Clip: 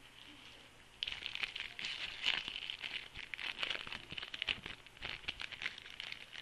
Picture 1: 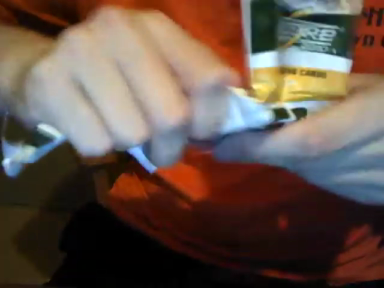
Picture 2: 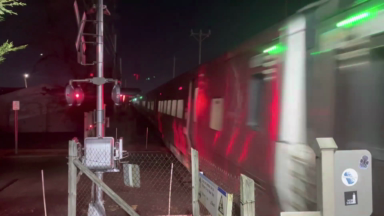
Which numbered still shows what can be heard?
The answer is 1